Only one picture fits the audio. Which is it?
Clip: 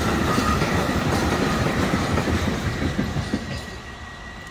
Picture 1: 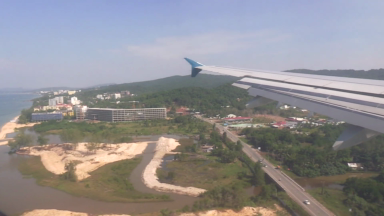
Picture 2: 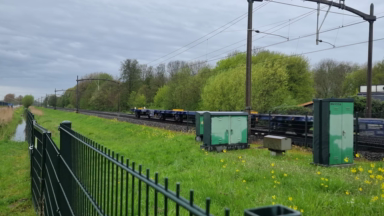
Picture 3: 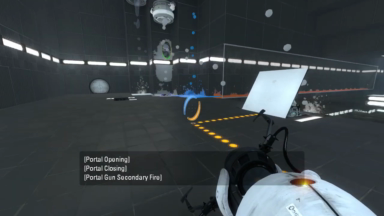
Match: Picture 2